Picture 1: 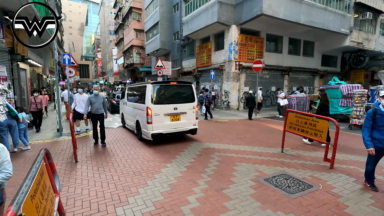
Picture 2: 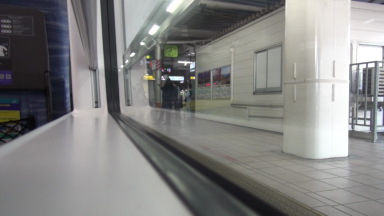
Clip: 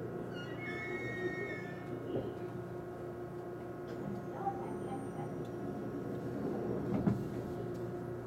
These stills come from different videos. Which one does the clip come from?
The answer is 2